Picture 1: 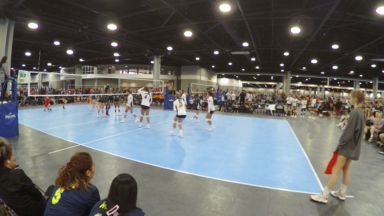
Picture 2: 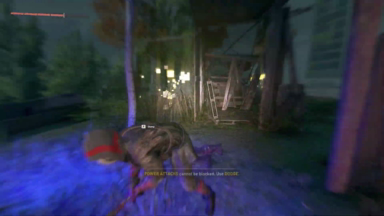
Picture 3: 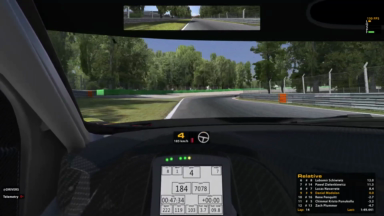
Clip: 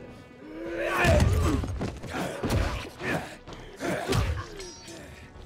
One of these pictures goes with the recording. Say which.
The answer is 2